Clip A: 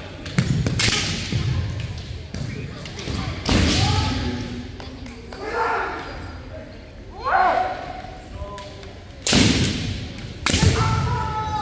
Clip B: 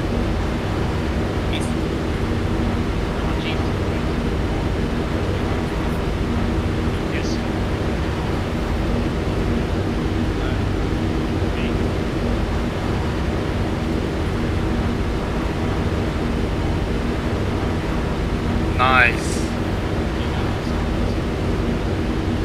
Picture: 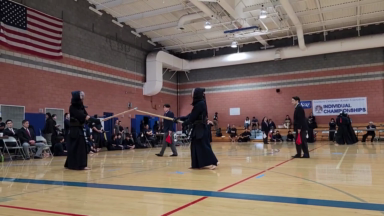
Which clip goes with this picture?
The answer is A